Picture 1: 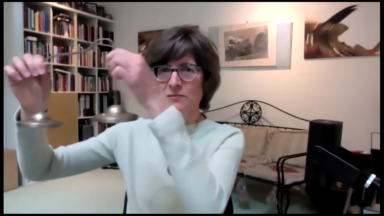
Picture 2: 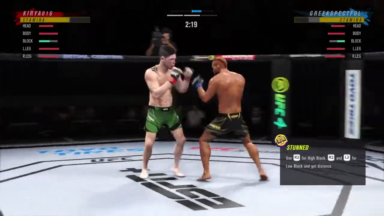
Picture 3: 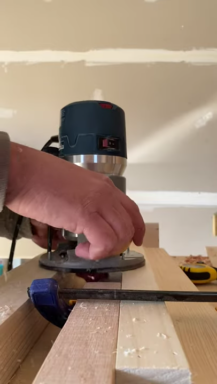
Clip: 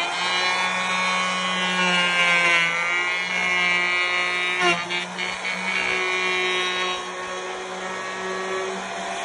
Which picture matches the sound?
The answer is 3